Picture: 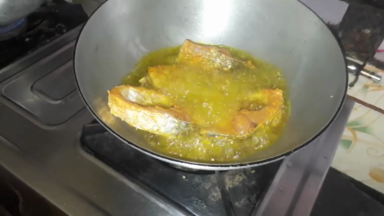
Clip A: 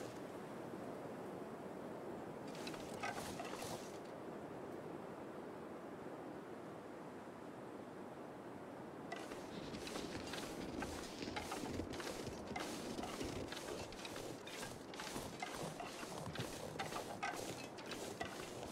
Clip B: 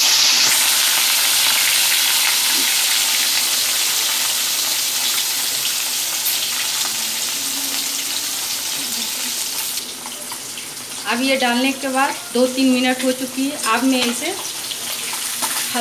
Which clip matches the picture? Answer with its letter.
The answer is B